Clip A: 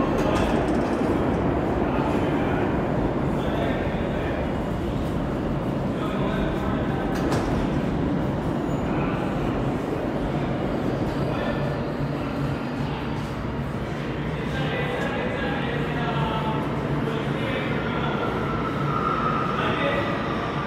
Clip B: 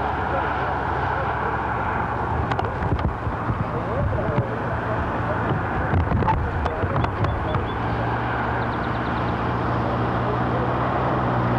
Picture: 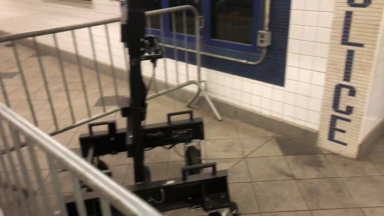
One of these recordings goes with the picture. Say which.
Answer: A